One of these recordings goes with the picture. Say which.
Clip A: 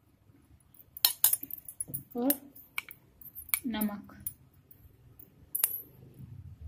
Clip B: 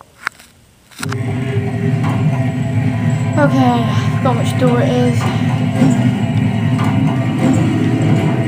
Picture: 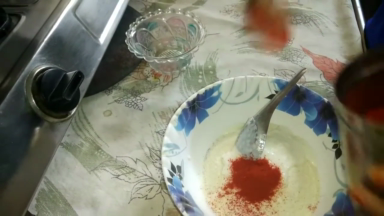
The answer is A